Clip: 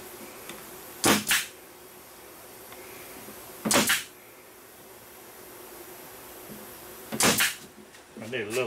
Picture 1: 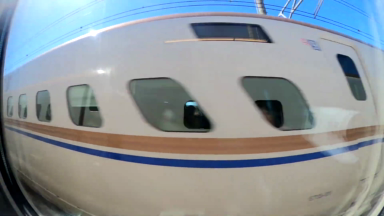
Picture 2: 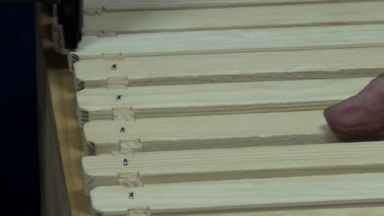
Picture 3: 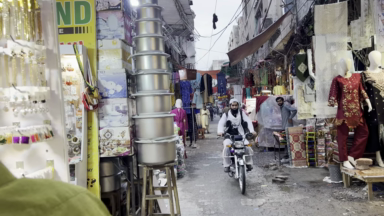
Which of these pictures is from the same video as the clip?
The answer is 2